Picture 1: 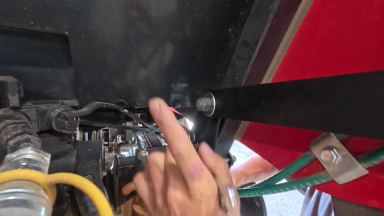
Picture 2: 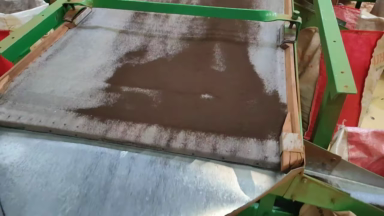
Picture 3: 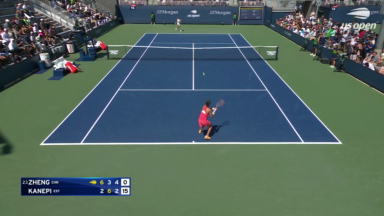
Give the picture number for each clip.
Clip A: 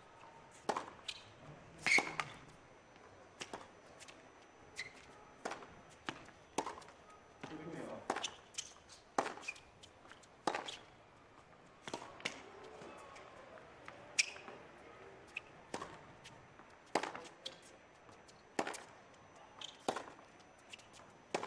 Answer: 3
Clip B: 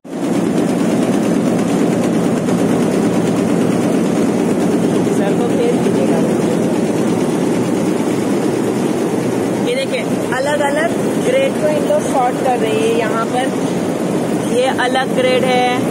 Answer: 2